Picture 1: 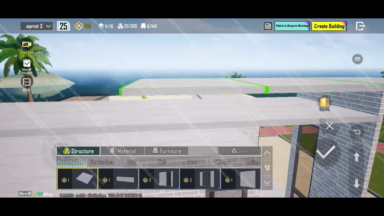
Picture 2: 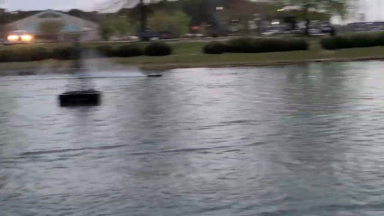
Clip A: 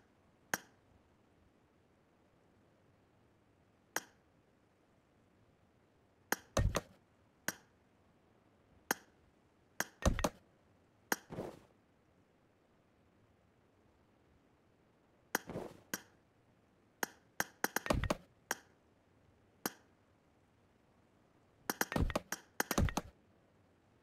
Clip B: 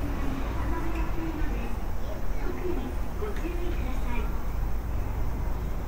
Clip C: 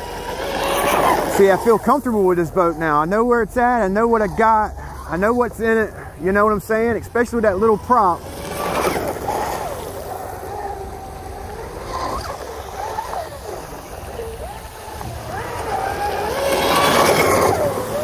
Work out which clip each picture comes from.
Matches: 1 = A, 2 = C